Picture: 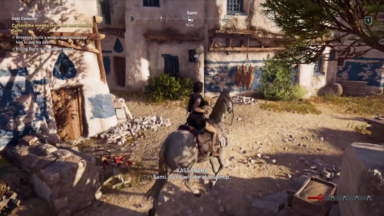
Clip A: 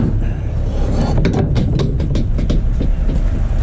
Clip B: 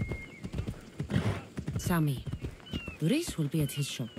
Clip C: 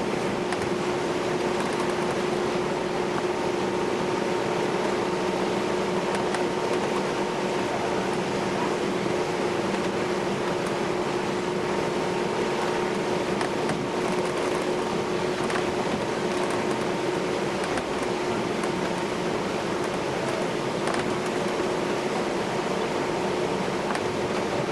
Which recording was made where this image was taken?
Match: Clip B